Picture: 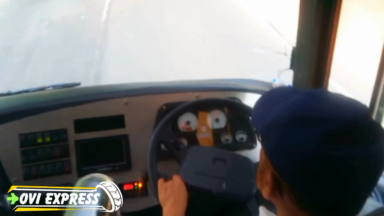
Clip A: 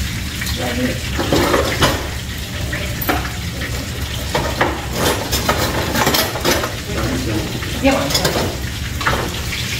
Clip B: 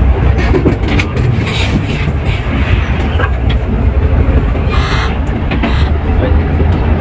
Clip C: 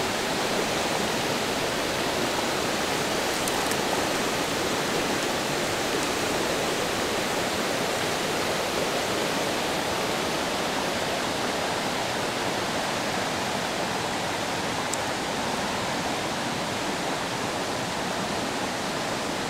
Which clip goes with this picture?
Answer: B